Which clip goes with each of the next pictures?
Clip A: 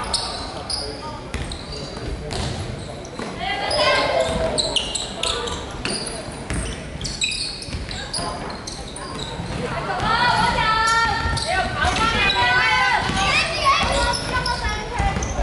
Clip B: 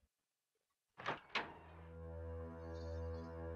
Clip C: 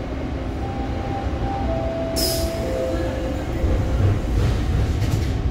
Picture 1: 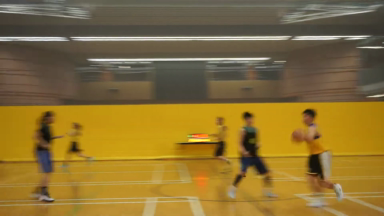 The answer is A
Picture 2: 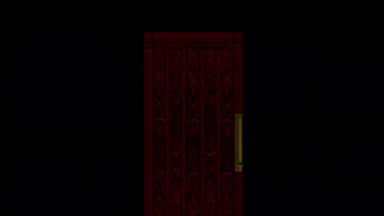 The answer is B